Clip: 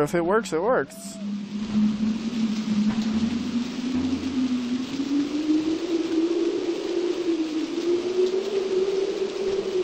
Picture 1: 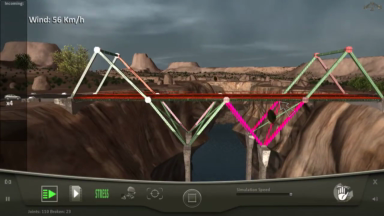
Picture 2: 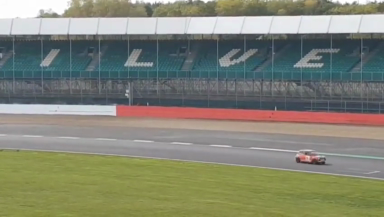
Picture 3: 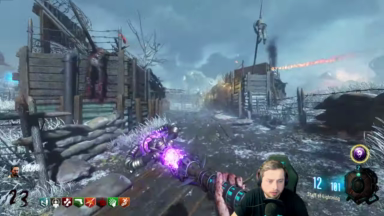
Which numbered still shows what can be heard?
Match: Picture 1